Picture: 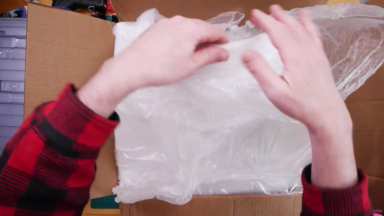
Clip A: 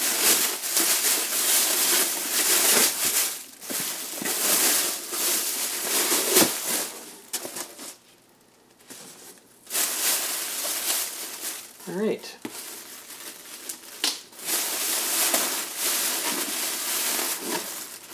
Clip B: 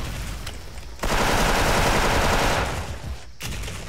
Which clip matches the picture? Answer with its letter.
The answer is A